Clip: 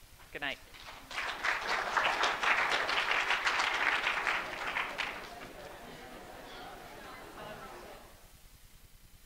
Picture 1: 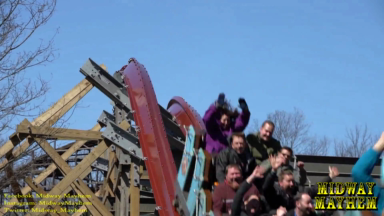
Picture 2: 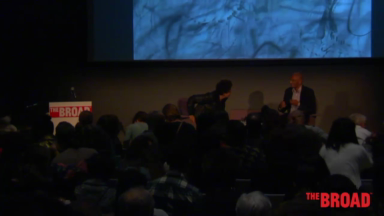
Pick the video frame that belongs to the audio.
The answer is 2